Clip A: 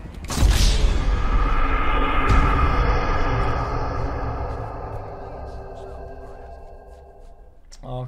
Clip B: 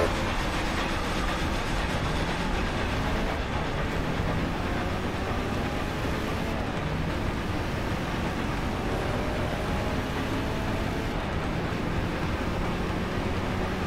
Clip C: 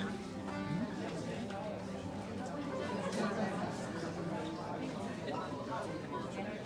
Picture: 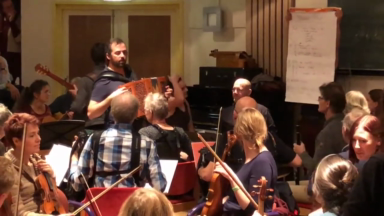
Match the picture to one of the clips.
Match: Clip C